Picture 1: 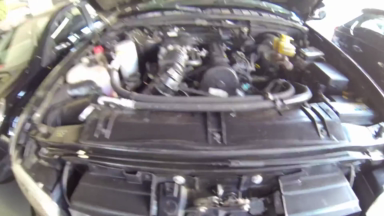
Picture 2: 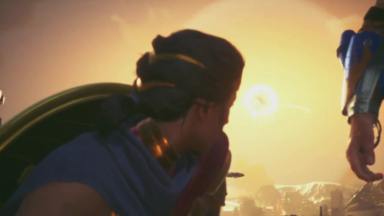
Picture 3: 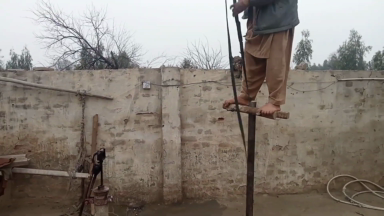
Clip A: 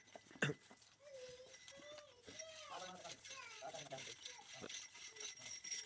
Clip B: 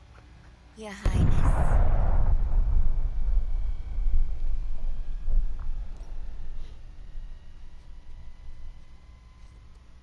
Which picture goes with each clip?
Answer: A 3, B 2